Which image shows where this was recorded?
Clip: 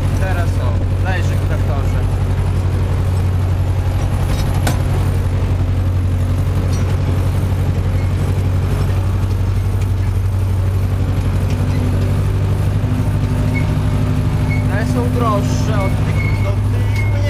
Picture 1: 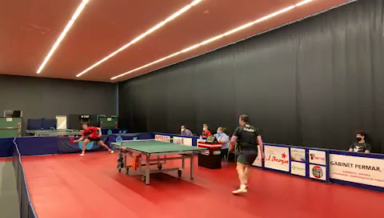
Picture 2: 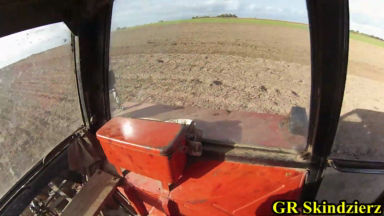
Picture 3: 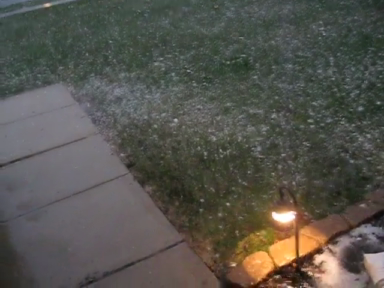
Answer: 2